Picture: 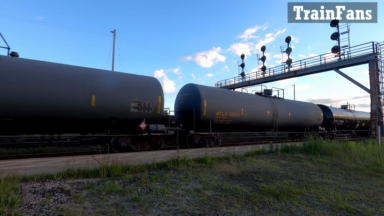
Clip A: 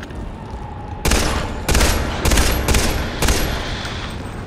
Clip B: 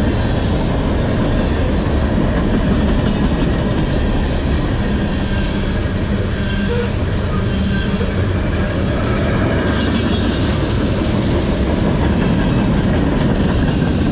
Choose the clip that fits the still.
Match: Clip B